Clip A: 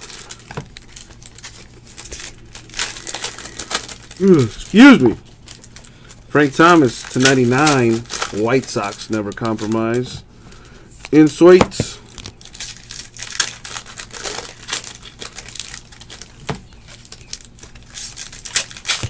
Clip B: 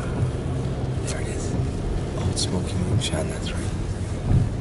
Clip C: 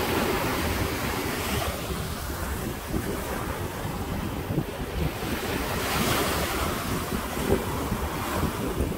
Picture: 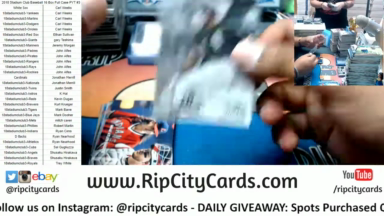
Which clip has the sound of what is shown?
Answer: A